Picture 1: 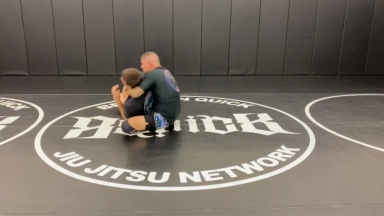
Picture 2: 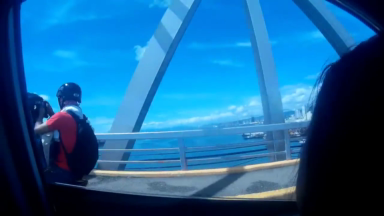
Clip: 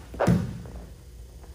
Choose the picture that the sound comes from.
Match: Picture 1